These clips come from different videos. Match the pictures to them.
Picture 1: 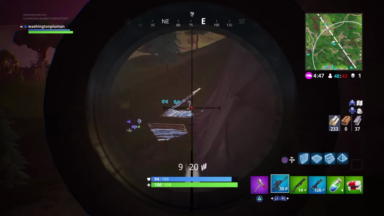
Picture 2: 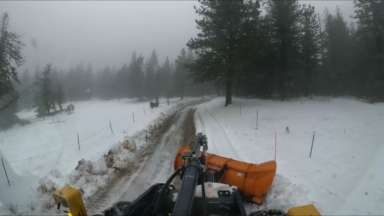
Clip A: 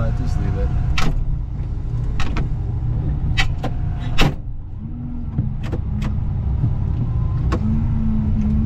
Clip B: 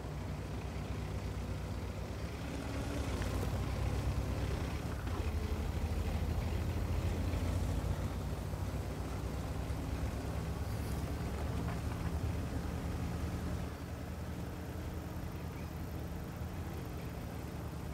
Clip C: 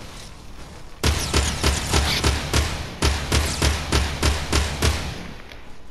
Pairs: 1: C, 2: A